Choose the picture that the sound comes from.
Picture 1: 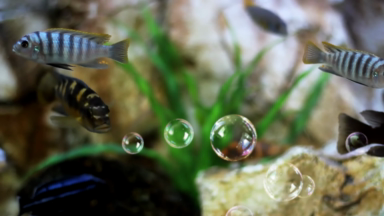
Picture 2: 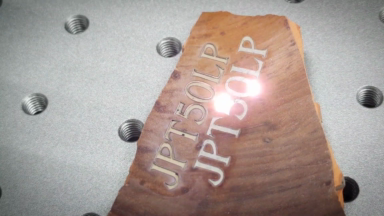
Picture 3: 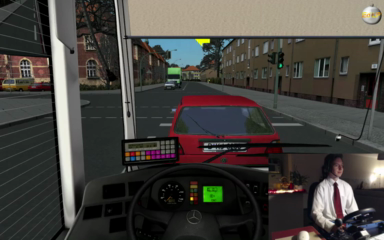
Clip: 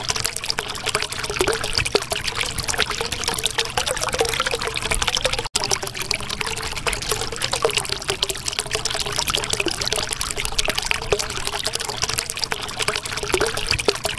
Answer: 1